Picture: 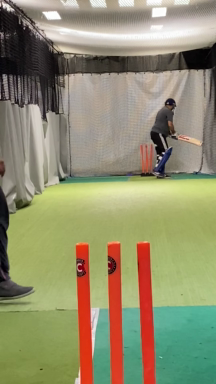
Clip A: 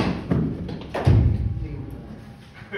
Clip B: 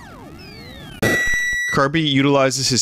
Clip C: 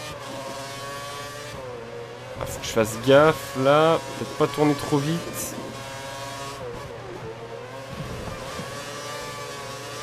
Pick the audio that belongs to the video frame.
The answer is A